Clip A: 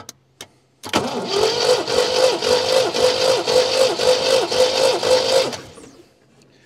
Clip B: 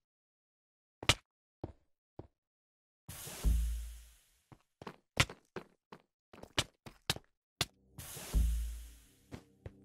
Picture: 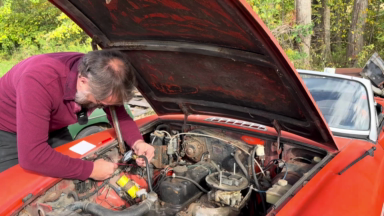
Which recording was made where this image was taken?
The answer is A